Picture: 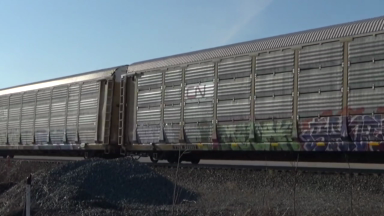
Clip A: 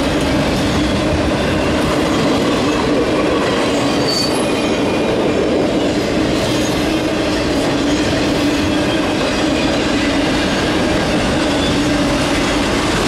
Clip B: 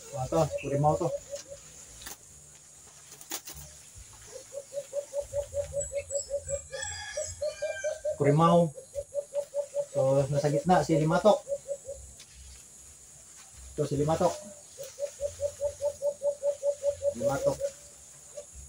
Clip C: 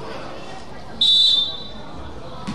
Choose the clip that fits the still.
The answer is A